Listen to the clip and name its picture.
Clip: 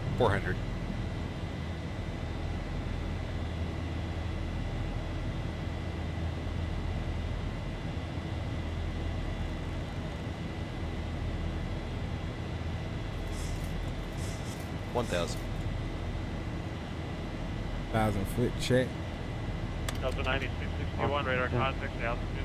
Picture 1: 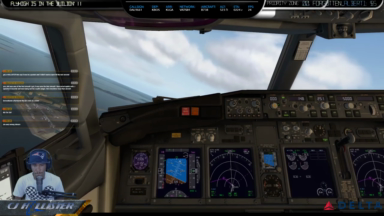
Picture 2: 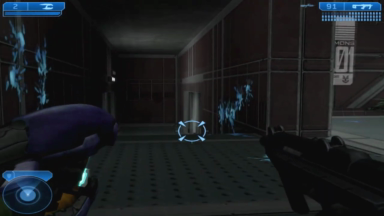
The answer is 1